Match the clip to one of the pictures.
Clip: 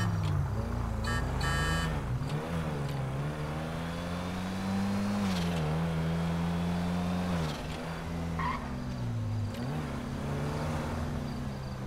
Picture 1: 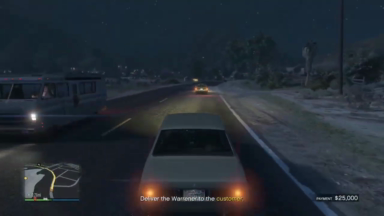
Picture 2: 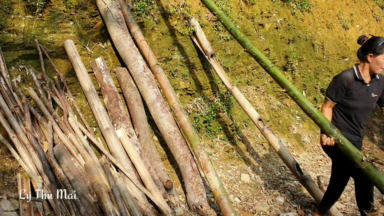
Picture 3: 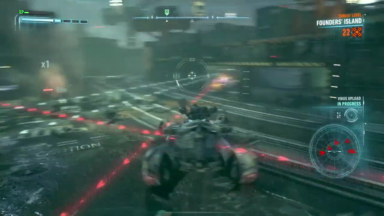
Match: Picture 1